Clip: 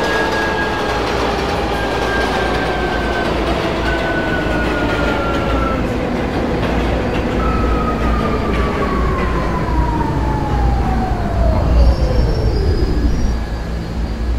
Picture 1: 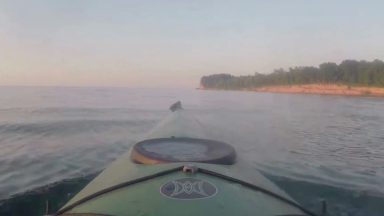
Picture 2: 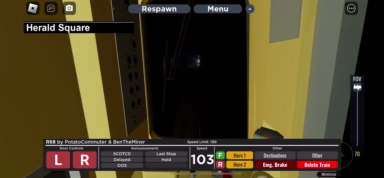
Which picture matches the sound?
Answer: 2